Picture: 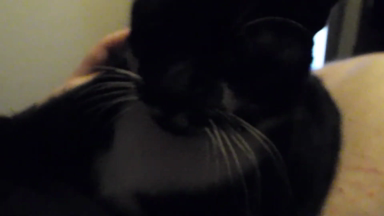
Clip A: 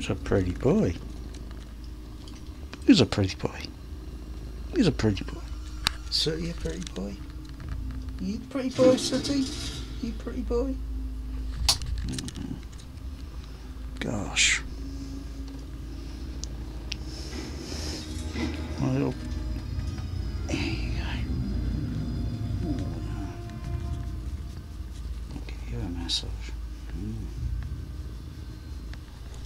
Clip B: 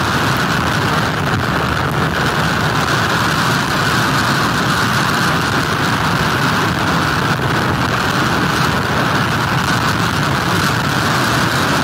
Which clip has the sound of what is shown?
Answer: A